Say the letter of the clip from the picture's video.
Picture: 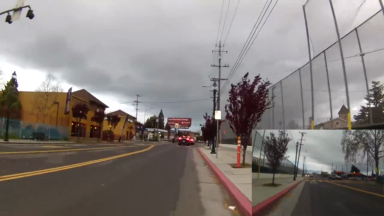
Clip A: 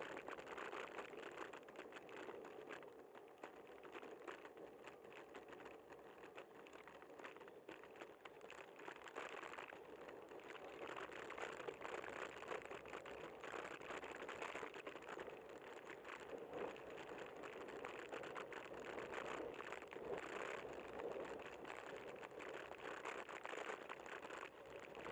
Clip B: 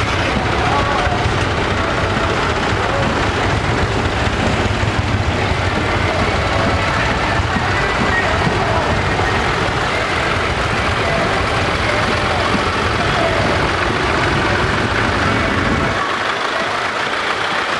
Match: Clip A